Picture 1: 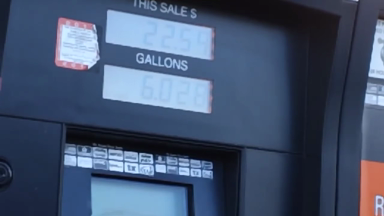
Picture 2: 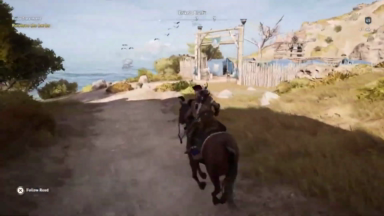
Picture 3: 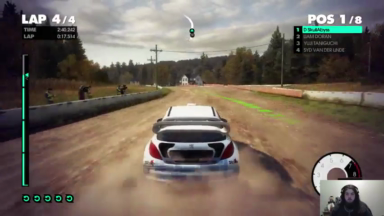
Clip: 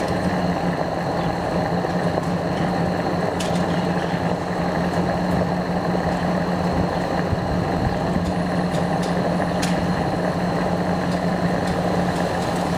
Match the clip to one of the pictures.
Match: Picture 1